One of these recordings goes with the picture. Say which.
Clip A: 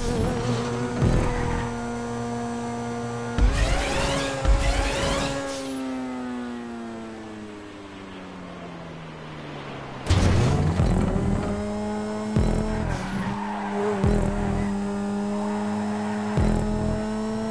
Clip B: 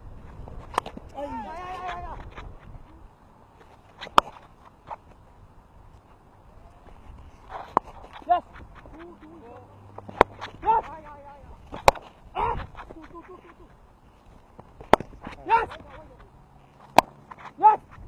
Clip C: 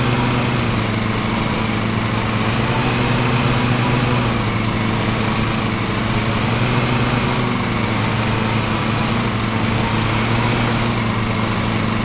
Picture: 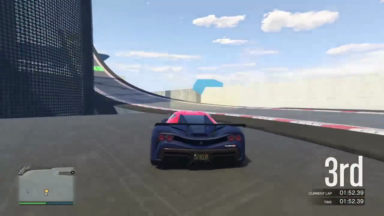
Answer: A